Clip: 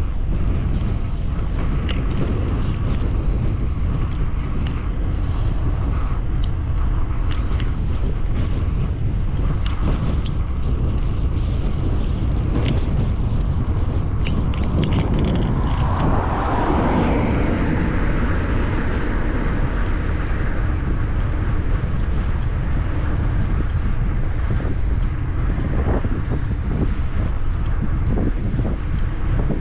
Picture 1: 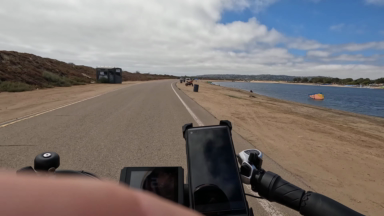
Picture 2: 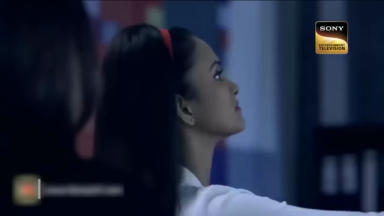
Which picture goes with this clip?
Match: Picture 1